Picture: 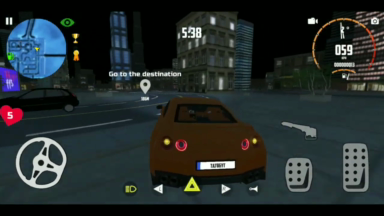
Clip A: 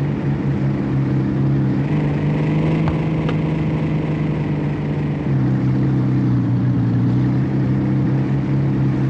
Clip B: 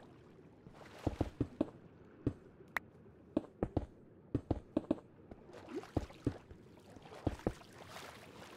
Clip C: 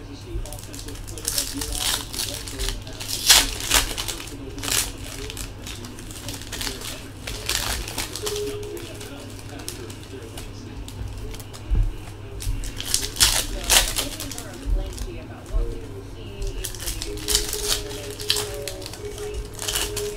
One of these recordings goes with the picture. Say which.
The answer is A